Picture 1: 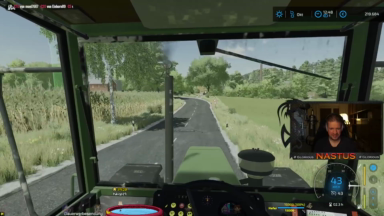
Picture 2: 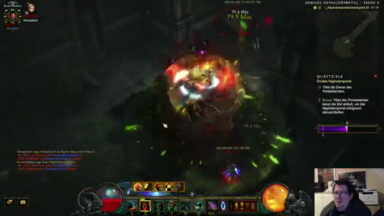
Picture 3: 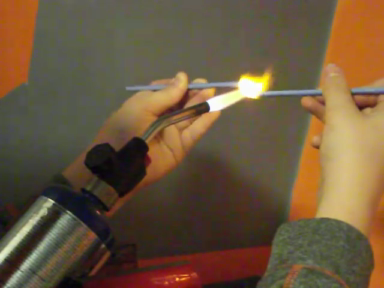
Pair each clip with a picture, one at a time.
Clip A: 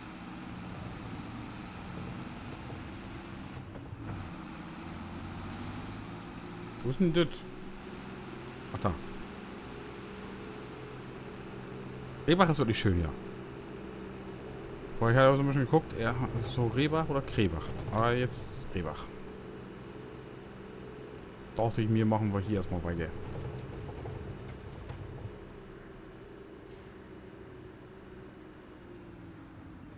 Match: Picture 1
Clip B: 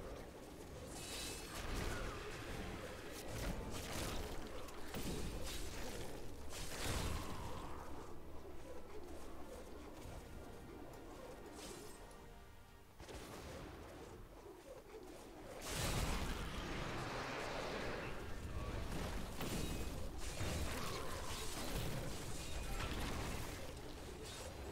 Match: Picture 2